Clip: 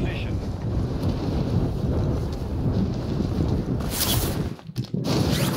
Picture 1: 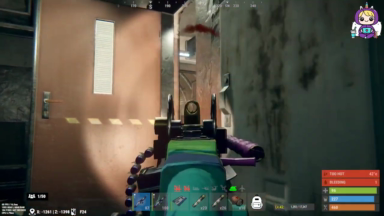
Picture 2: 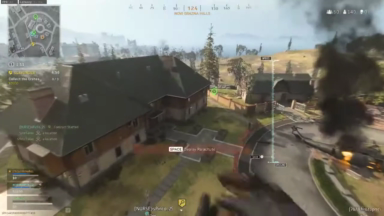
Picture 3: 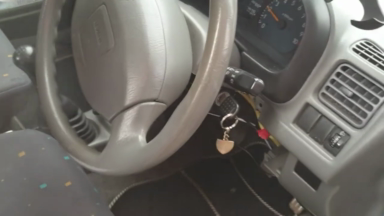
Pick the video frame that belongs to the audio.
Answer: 2